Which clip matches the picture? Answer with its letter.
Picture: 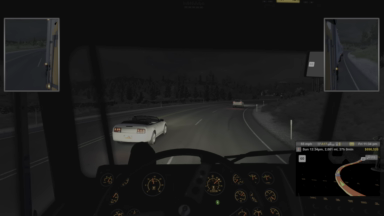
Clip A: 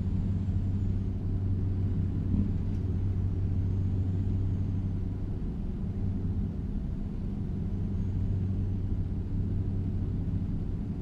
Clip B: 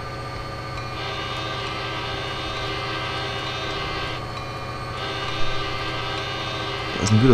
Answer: A